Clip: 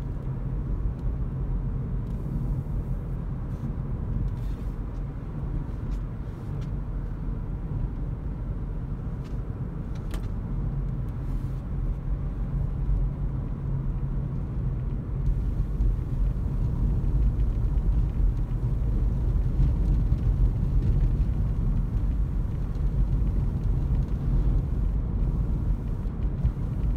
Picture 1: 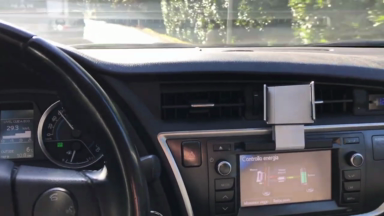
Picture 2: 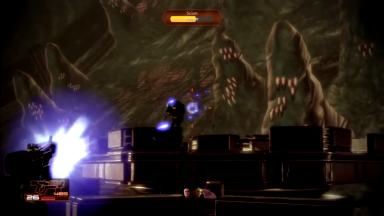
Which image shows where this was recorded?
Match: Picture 1